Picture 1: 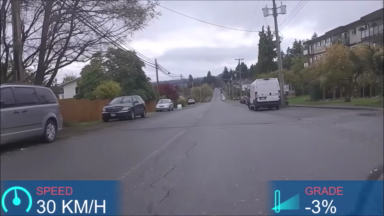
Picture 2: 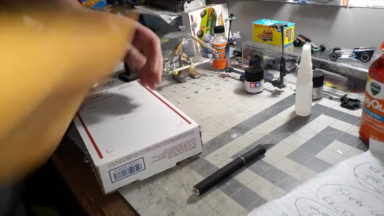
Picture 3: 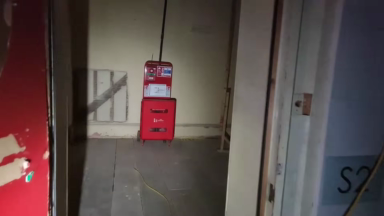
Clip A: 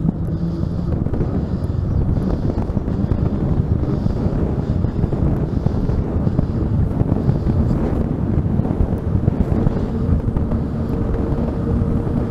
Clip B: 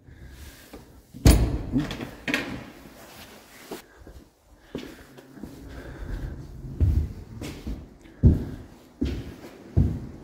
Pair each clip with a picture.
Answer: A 1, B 3